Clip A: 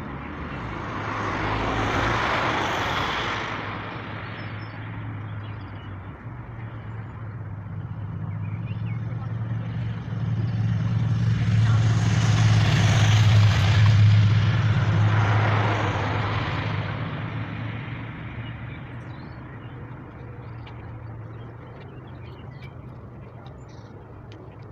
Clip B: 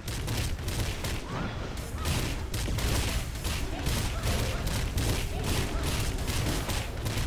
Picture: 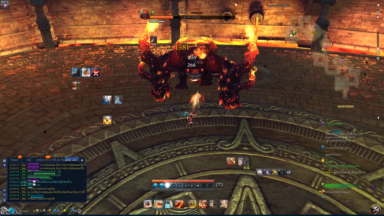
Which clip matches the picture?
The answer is B